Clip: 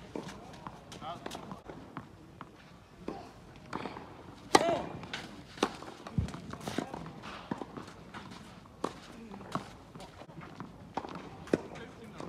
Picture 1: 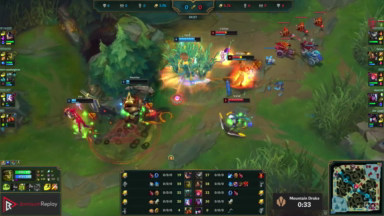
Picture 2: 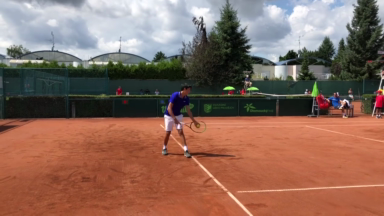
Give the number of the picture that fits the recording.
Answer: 2